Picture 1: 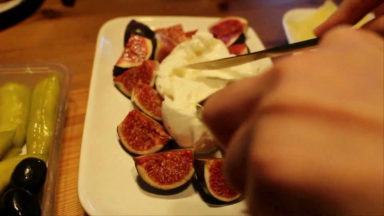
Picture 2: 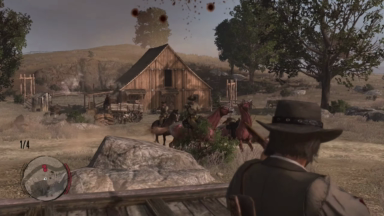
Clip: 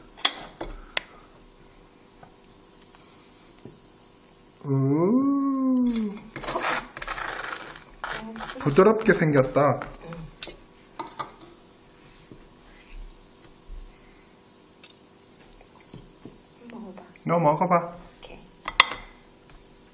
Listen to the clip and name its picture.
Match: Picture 1